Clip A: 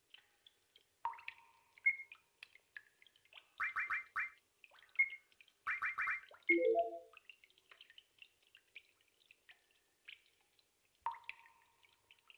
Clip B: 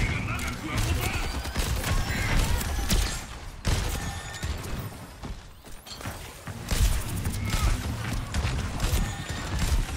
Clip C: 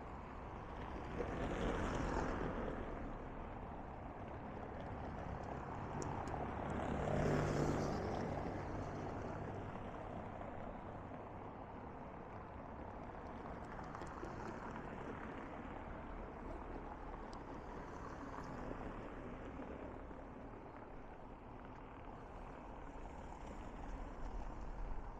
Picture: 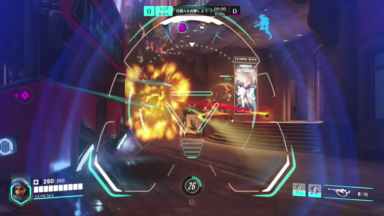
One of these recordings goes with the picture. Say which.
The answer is B